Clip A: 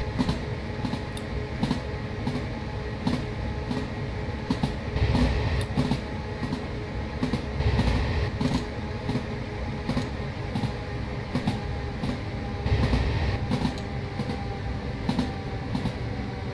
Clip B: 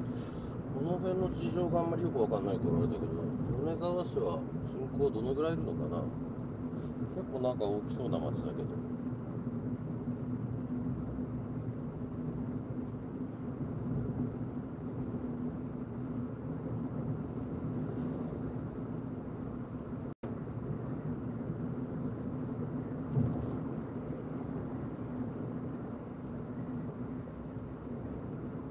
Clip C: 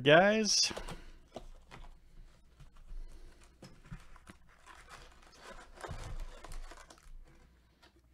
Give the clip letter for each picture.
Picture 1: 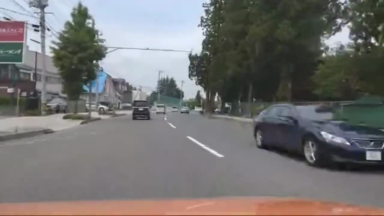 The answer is B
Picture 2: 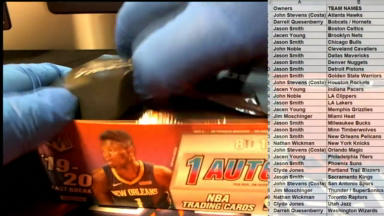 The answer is C